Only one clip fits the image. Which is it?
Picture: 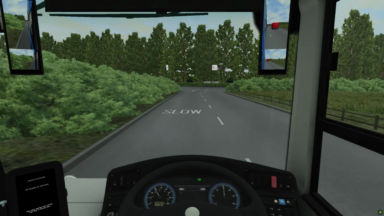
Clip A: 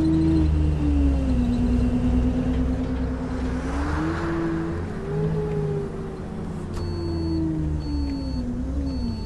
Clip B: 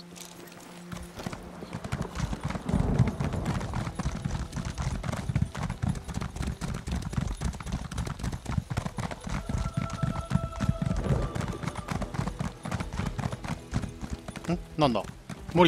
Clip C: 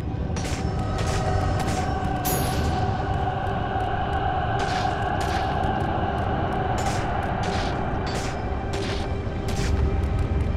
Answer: A